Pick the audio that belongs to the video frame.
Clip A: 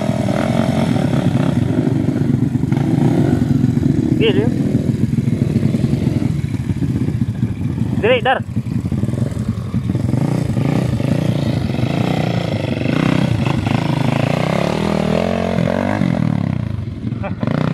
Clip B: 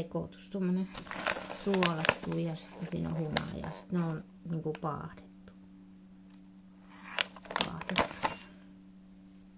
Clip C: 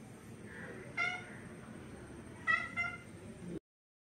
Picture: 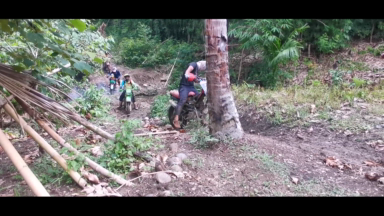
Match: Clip A